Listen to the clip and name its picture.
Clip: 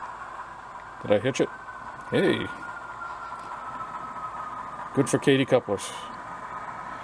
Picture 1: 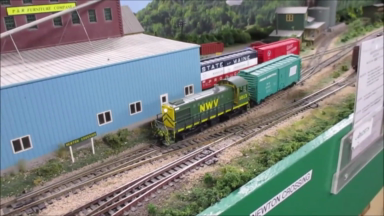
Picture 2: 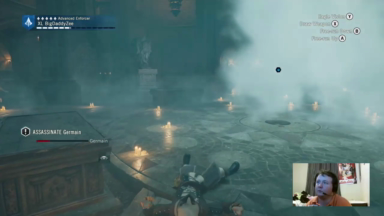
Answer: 1